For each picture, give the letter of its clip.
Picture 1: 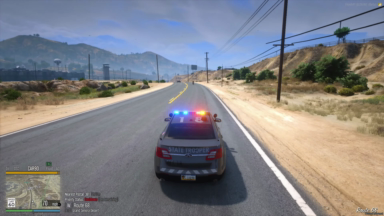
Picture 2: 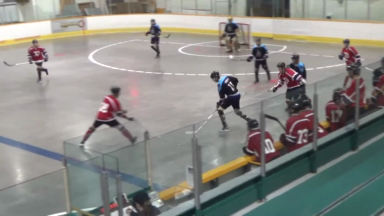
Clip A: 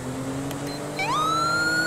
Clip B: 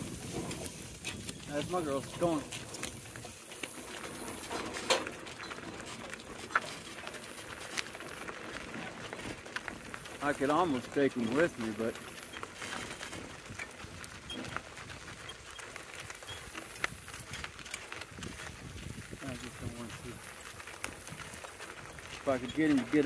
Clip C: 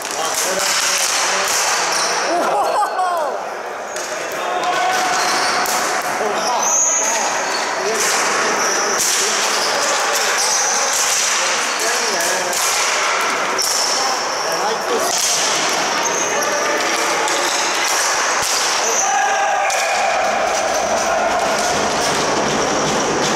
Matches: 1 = A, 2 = C